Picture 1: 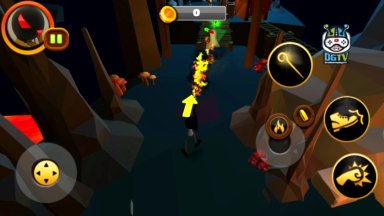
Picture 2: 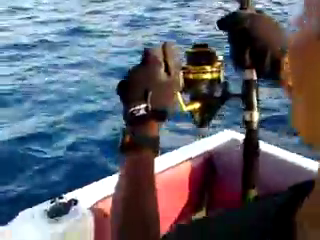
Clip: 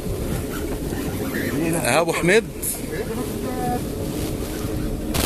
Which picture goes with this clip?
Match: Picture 2